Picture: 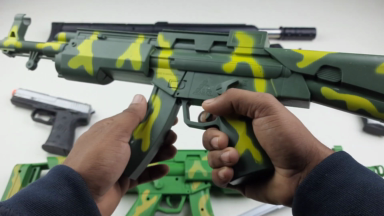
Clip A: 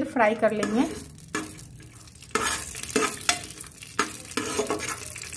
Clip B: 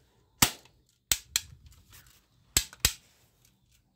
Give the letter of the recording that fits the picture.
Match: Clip B